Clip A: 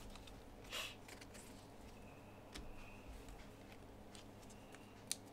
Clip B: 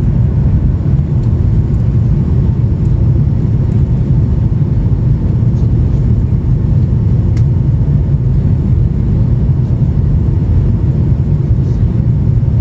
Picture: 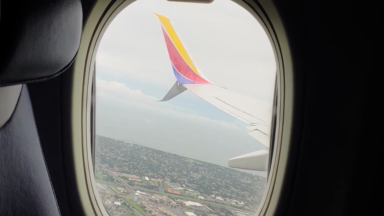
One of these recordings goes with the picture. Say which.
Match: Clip B